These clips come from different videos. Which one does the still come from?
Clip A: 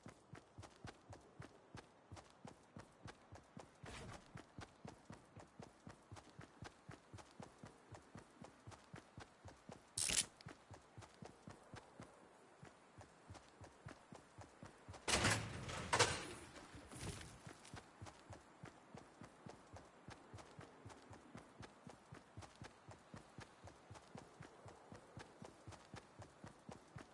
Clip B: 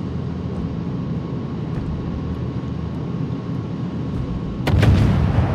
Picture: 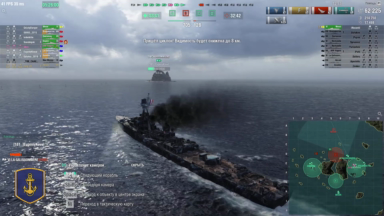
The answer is B